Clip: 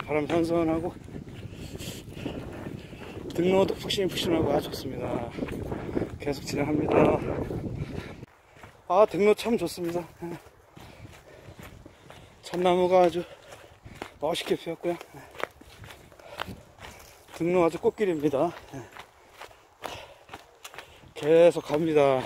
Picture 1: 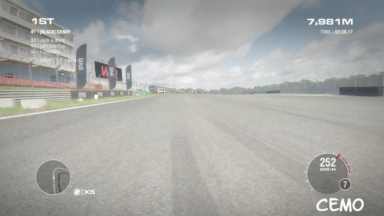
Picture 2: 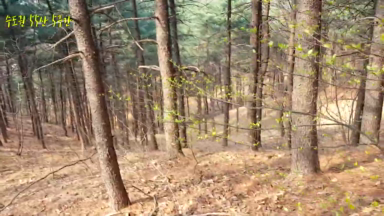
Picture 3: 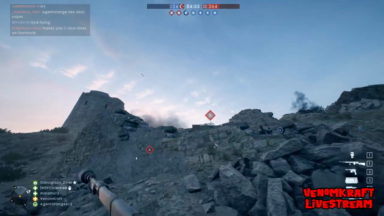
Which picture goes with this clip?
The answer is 2